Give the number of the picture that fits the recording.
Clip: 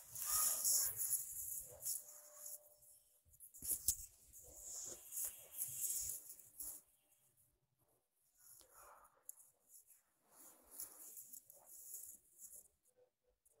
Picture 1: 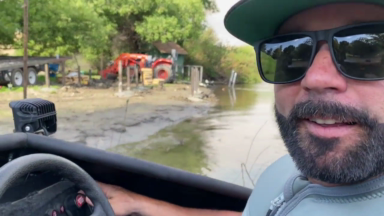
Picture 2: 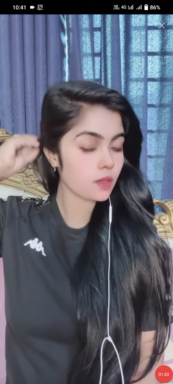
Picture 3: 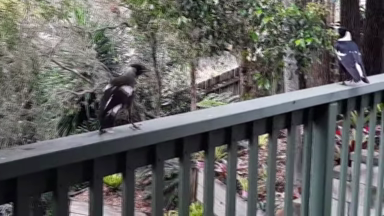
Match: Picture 2